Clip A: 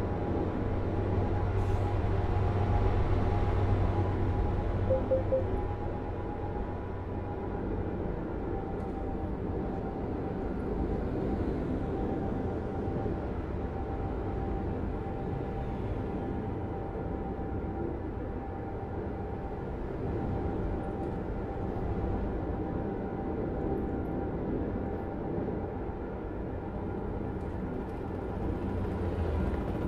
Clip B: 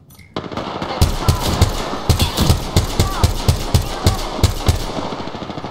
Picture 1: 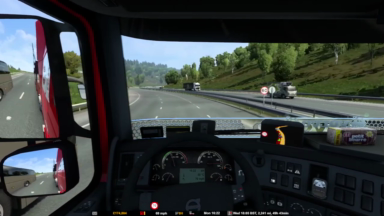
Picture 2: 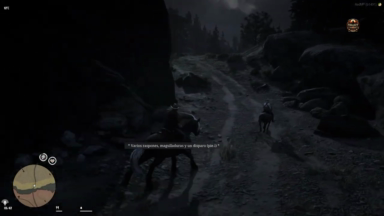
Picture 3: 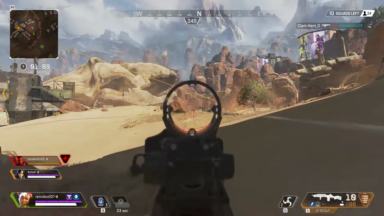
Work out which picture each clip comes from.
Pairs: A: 1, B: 3